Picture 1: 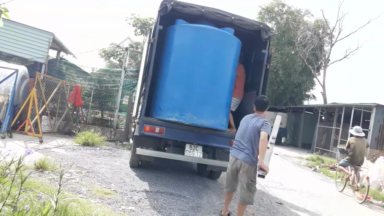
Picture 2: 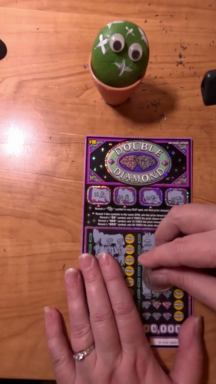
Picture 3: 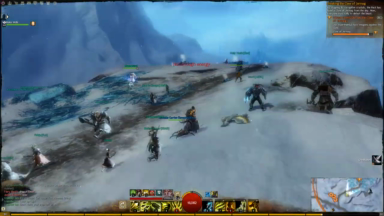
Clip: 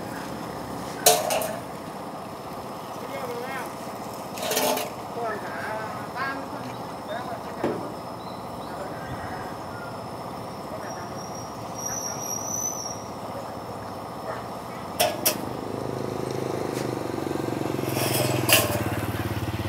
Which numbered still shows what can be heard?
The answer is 1